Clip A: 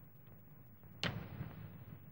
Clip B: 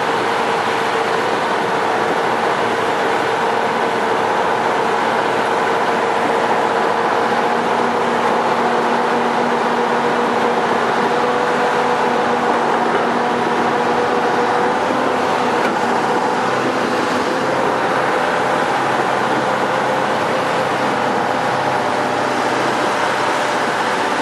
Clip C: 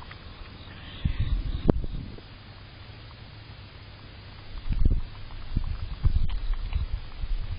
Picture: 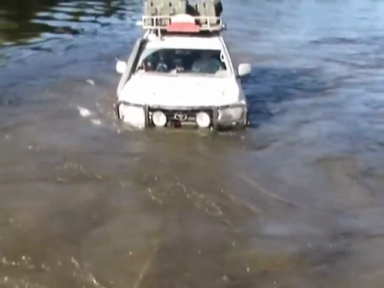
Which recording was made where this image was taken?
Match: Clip B